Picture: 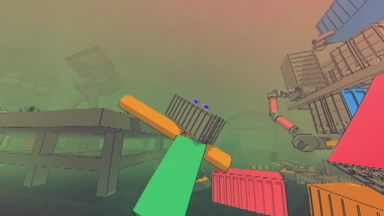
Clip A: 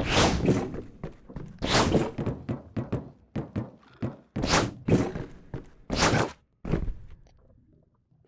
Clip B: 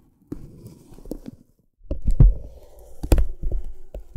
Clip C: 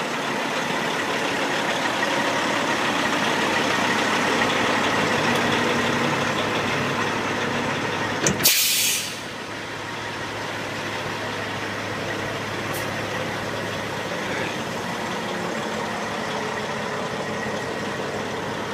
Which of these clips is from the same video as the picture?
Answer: A